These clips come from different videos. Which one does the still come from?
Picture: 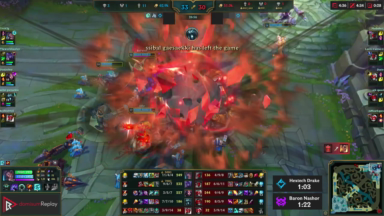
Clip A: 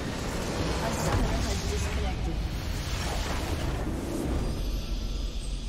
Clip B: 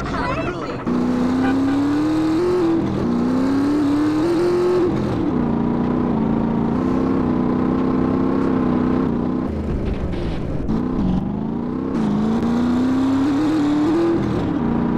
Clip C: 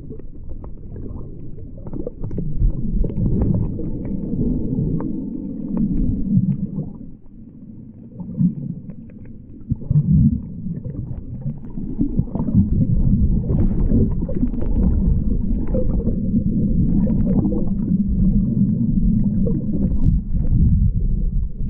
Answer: A